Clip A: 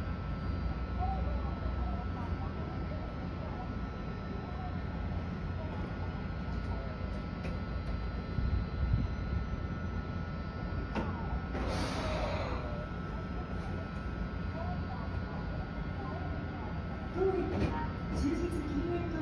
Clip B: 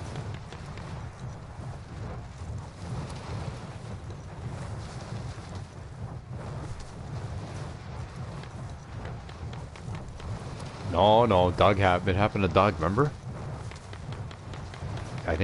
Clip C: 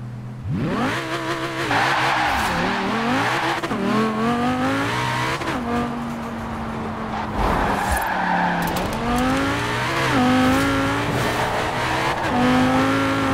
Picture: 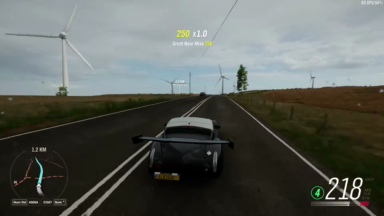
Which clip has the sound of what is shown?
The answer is C